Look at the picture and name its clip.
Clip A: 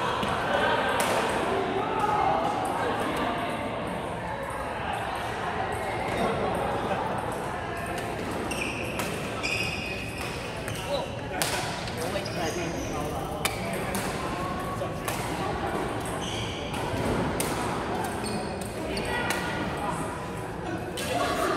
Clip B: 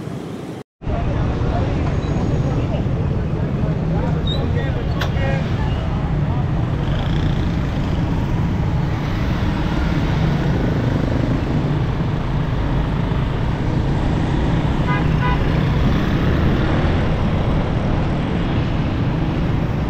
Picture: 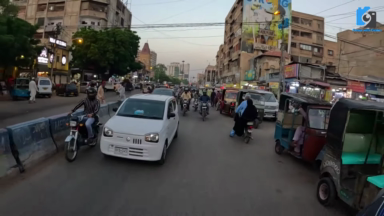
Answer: B